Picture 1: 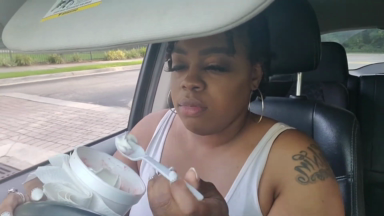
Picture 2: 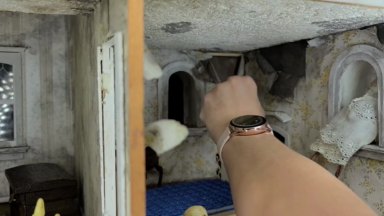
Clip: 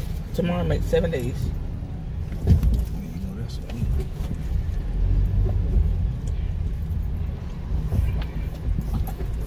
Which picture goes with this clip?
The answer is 1